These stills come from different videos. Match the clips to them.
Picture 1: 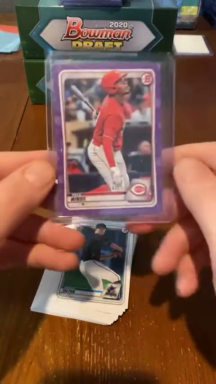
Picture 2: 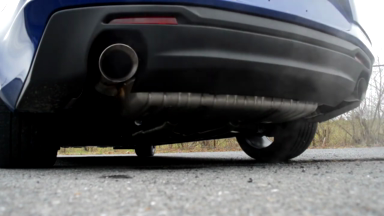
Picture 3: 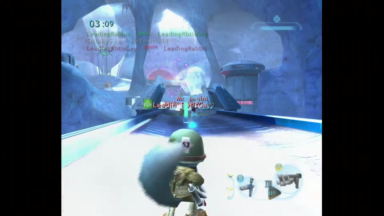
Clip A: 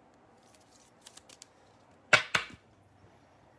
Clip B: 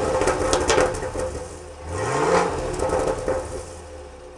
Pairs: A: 1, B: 2